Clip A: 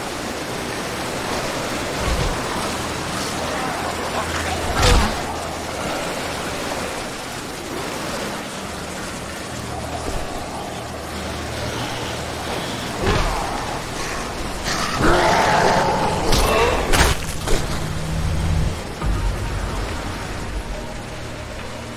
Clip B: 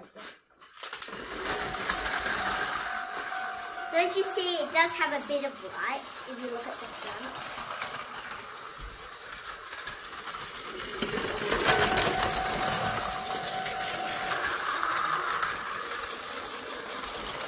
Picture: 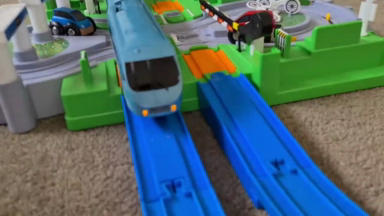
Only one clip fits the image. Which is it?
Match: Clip B